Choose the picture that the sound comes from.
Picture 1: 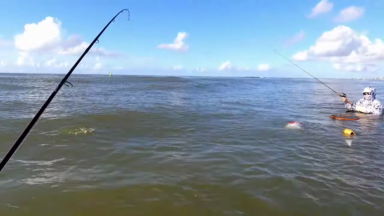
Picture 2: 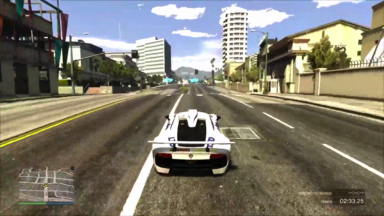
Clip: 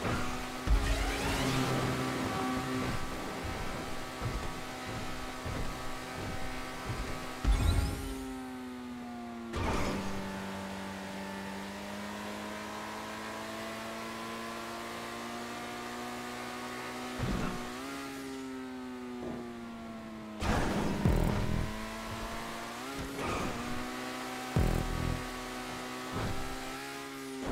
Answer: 2